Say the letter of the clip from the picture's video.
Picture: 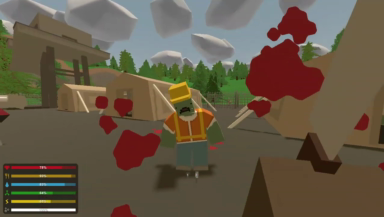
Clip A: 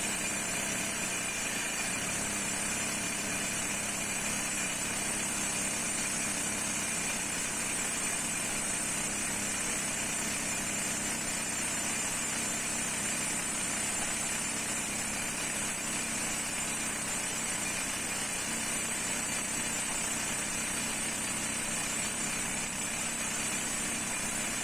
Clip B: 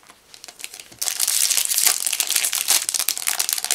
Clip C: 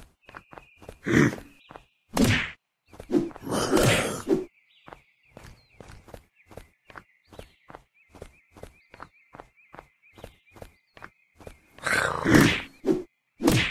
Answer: C